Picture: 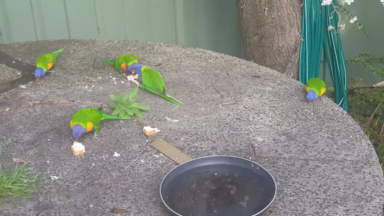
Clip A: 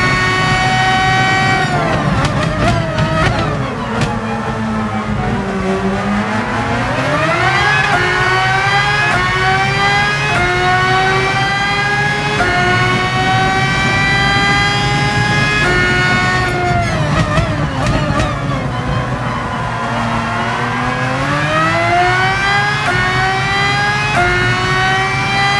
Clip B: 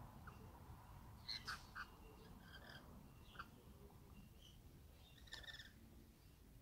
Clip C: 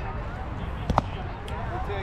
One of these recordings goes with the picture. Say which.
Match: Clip B